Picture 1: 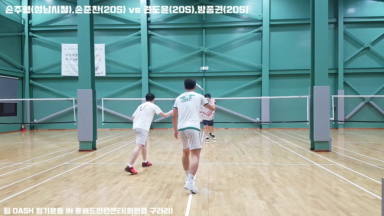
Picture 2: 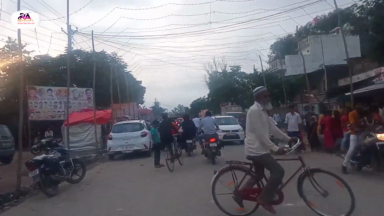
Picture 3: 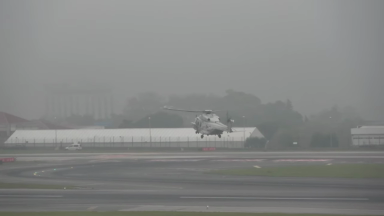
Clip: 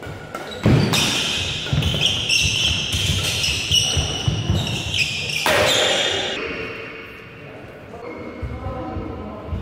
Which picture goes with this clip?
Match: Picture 1